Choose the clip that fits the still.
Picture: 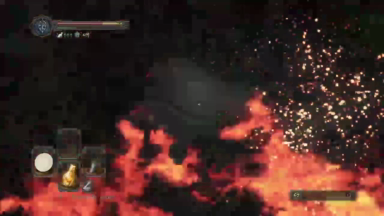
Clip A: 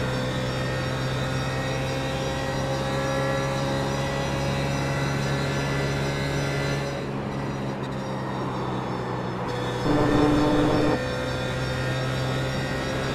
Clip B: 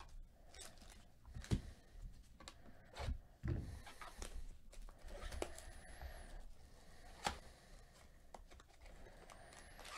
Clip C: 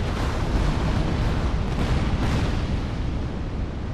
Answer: C